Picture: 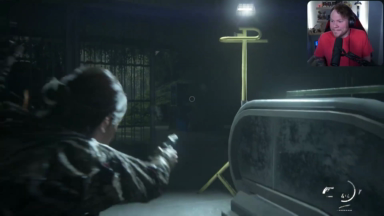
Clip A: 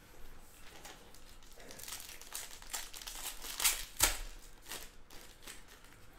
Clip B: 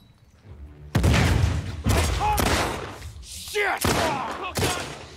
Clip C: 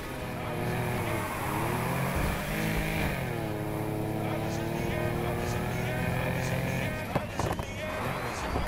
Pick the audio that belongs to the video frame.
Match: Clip B